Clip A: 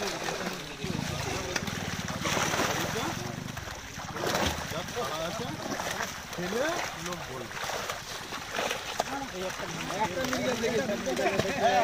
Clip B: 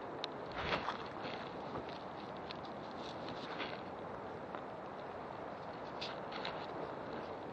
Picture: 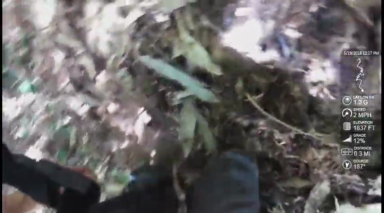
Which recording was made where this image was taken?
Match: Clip B